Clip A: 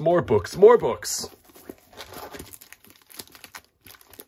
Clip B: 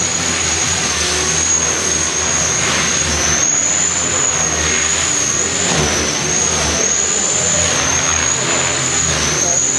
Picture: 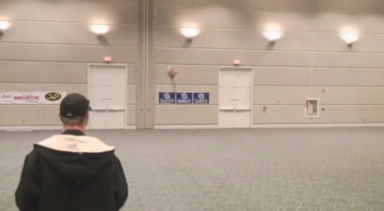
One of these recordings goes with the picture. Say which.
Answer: B